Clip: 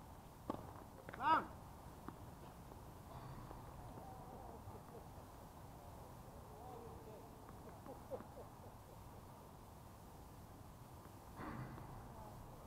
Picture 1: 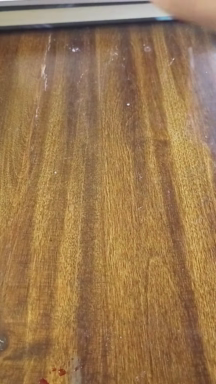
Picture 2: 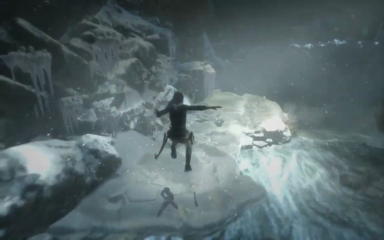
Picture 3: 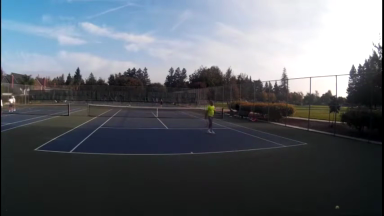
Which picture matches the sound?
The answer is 3